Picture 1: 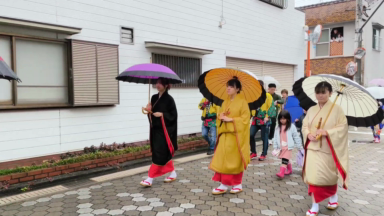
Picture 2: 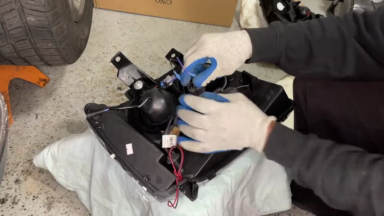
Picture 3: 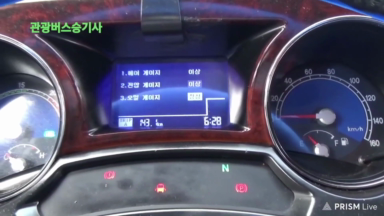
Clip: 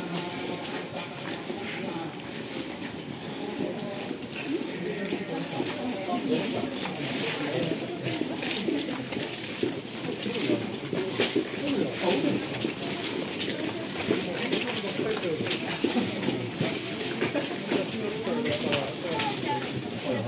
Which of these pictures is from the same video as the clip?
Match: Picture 1